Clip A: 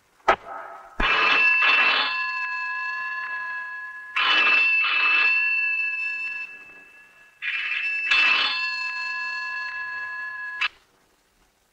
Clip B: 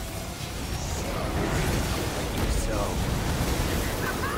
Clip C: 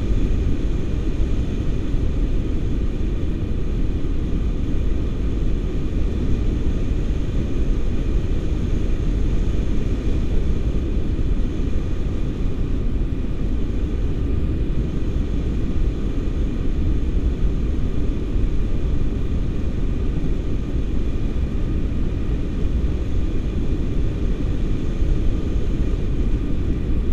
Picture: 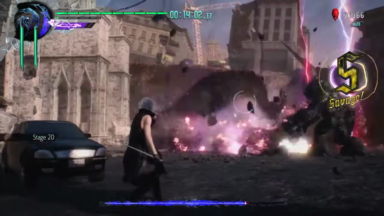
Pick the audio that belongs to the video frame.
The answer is B